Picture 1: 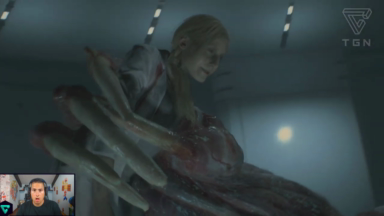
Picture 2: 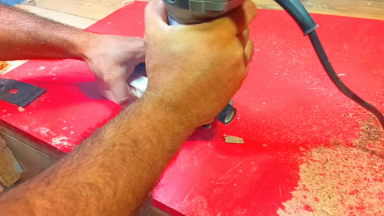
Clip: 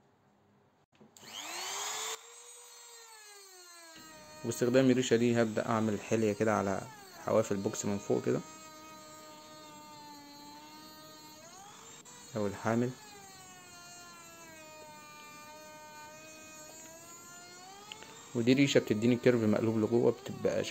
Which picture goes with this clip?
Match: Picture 2